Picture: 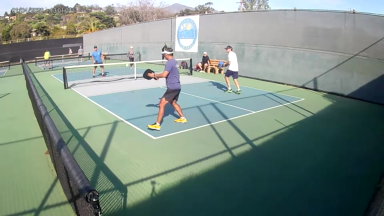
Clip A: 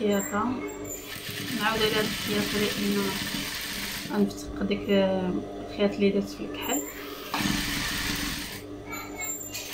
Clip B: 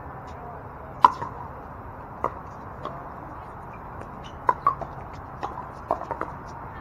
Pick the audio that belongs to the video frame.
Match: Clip B